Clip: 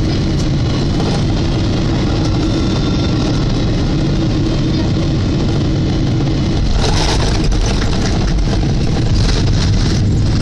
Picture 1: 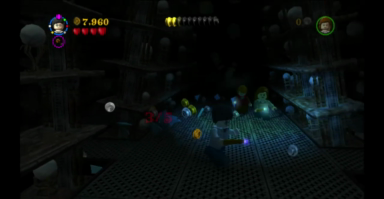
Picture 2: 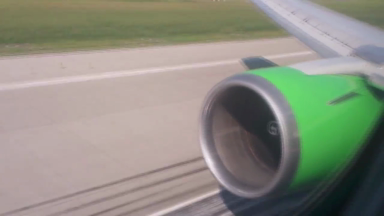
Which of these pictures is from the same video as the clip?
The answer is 2